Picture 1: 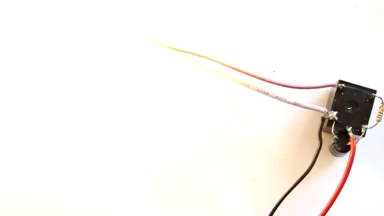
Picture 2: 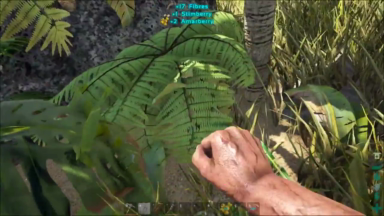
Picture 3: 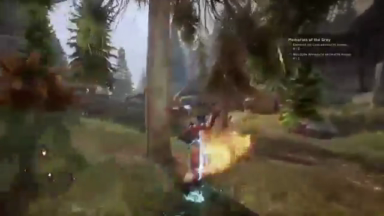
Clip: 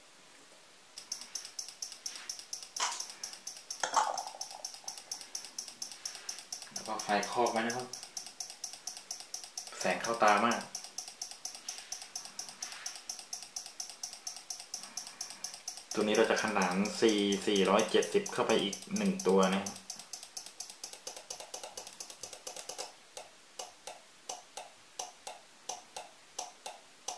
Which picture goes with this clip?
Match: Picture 1